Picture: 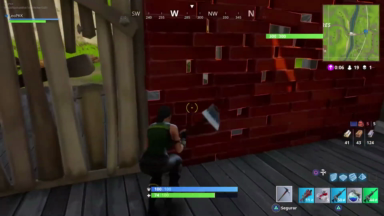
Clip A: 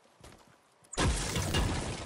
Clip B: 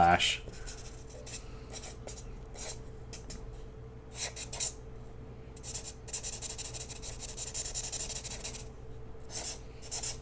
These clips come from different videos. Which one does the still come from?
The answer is A